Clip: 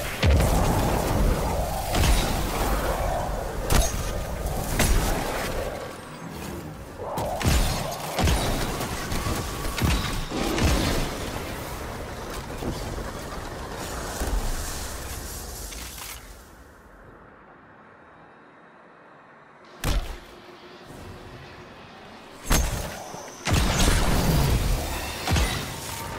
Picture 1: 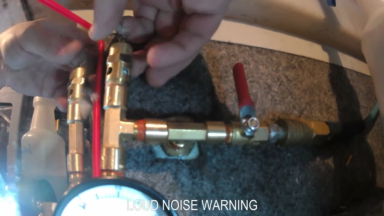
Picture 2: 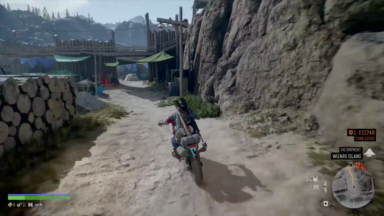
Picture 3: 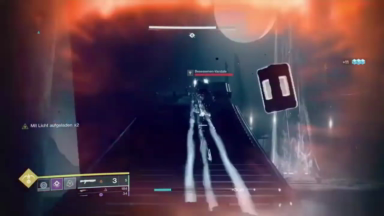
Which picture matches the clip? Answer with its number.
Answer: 3